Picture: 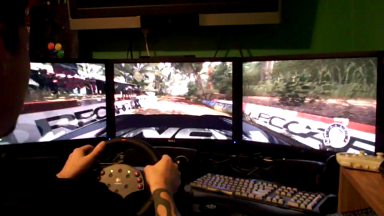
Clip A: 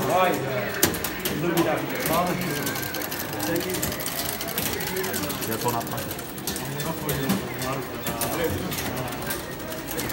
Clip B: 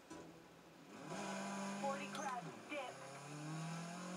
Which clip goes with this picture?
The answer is B